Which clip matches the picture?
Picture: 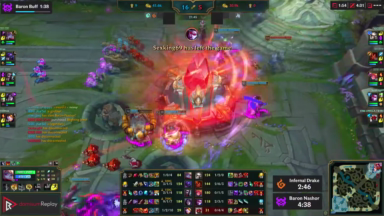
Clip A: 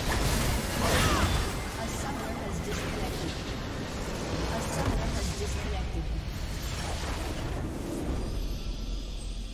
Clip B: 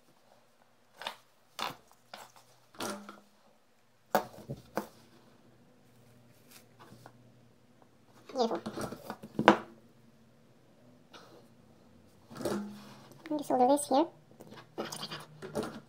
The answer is A